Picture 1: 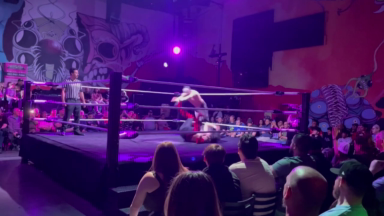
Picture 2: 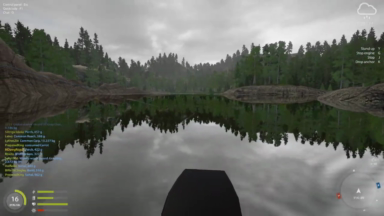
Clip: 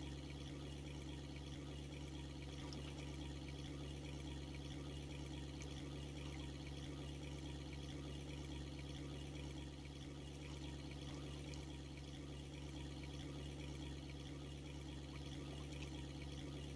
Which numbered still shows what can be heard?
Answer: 2